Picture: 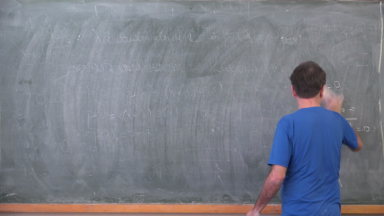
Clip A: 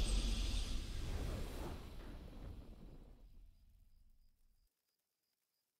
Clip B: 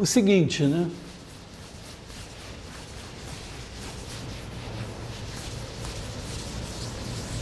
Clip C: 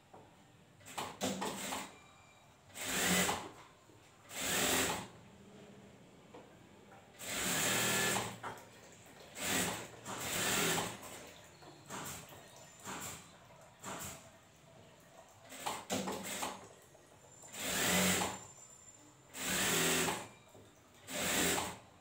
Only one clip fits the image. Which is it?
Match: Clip B